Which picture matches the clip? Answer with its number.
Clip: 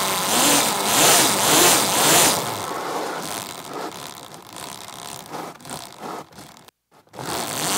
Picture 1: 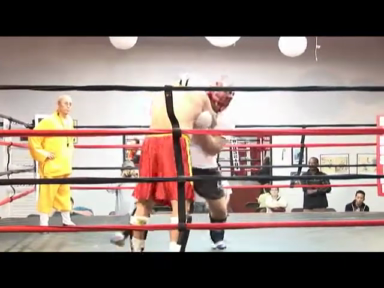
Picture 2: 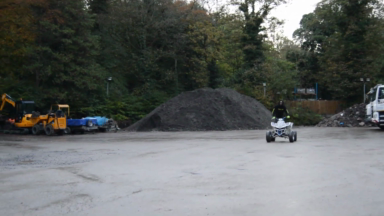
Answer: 2